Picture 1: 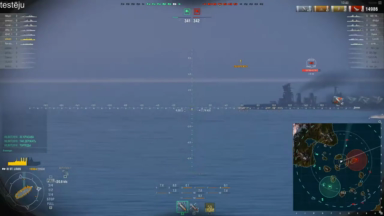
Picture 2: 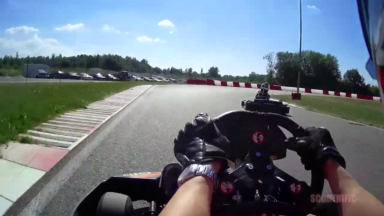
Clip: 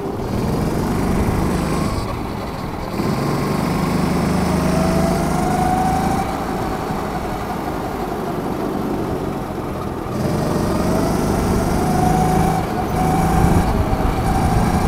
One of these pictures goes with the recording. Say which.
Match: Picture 2